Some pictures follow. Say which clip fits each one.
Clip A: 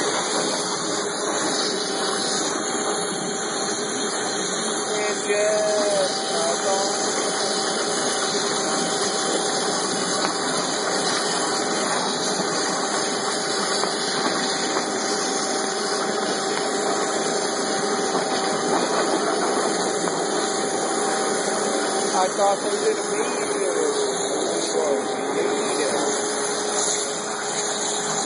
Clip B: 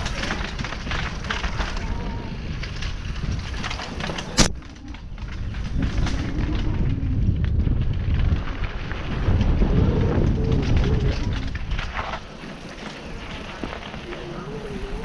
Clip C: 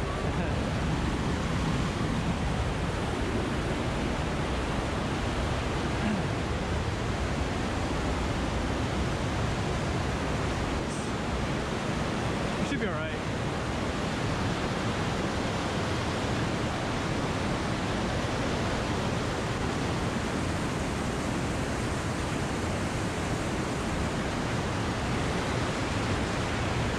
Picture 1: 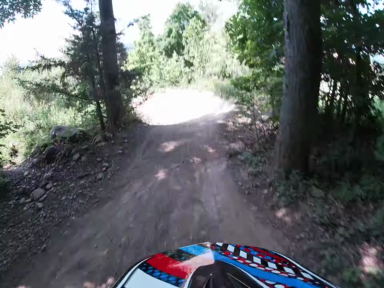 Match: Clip B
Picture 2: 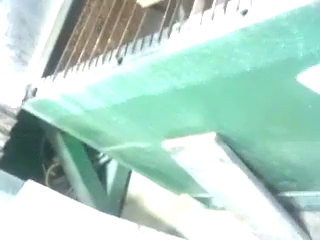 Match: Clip A